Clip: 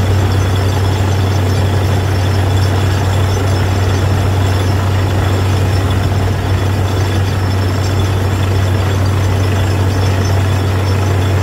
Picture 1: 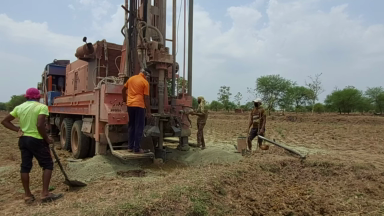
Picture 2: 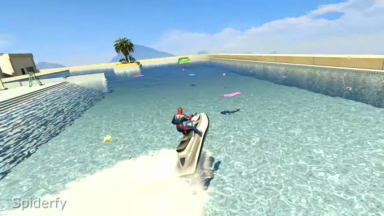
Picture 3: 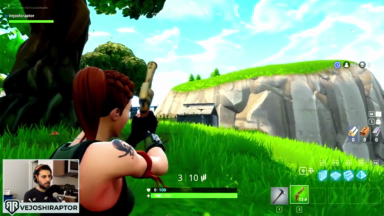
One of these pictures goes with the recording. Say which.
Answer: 1